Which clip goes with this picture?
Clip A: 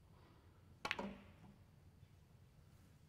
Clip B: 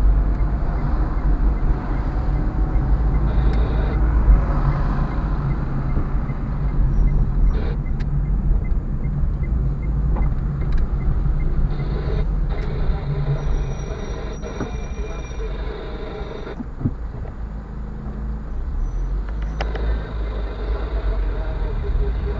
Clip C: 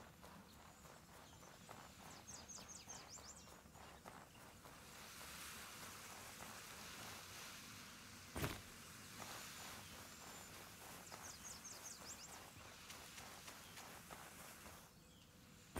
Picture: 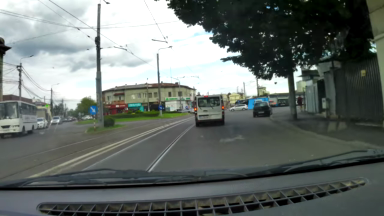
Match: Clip B